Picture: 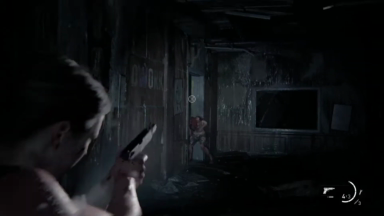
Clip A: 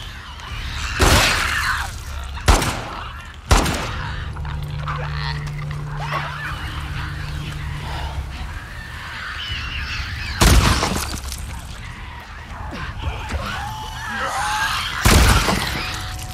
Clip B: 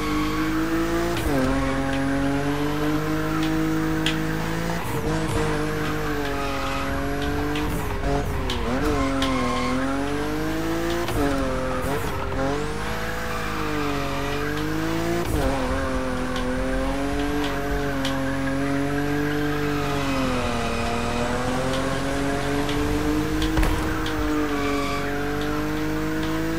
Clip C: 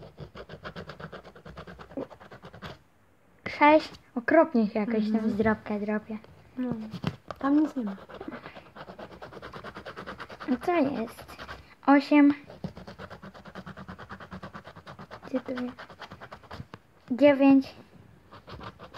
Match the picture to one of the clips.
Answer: A